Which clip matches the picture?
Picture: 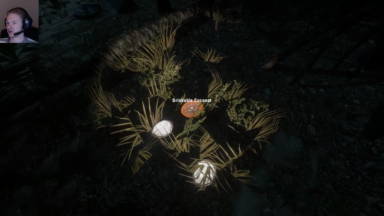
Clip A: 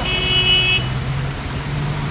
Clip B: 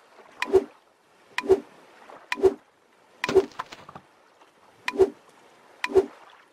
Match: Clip B